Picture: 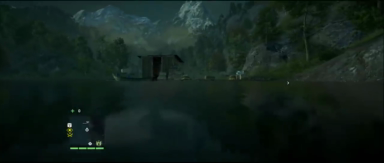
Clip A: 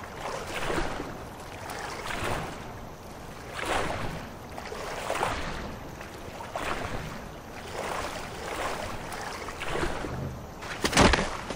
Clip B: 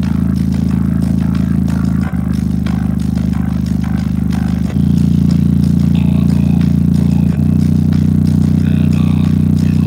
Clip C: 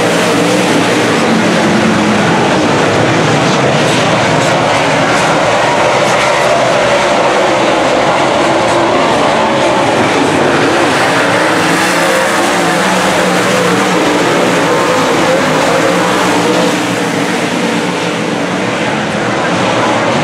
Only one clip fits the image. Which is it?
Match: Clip A